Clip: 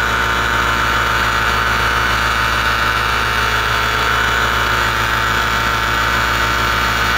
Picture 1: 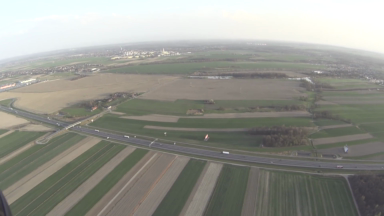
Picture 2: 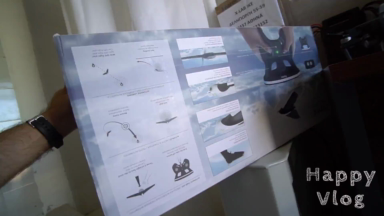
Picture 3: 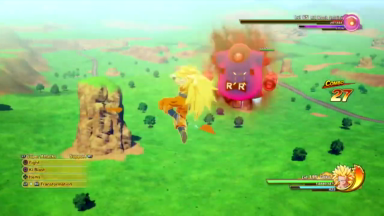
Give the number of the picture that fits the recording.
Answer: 1